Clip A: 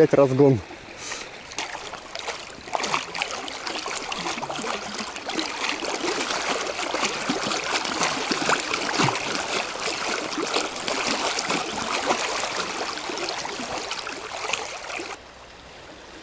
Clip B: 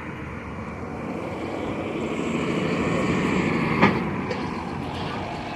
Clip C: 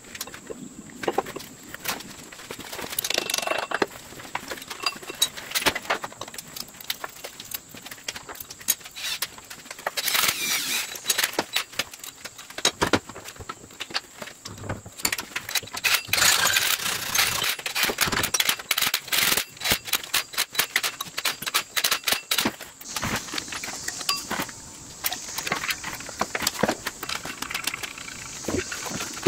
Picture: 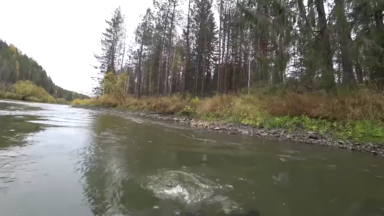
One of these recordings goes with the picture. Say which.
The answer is A